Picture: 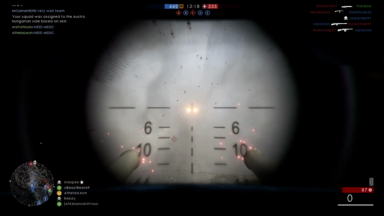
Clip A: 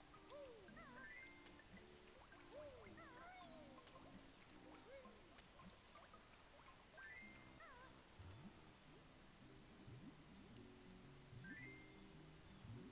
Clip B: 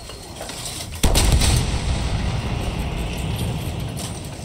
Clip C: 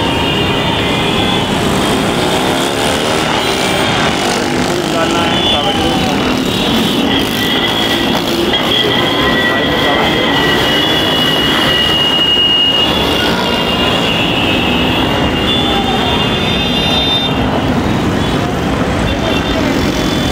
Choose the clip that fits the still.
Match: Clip B